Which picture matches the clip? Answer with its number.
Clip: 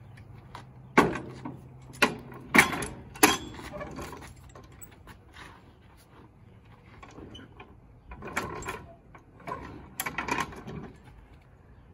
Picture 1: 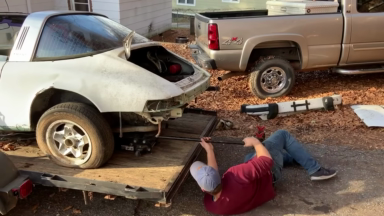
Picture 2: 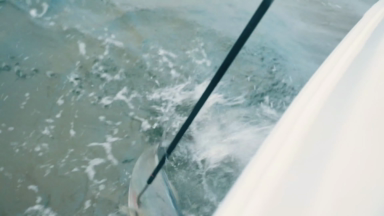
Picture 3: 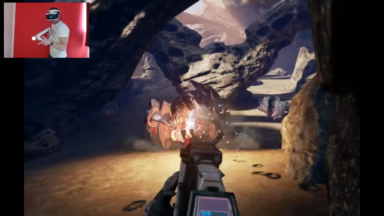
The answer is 1